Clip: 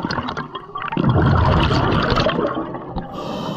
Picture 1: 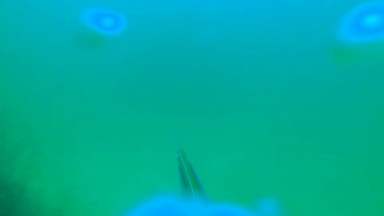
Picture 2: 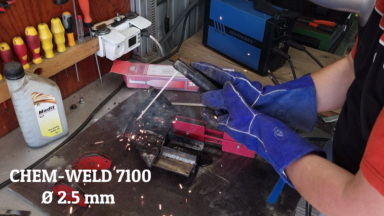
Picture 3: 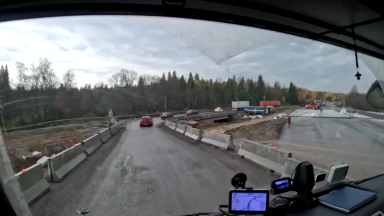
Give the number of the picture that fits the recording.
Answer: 1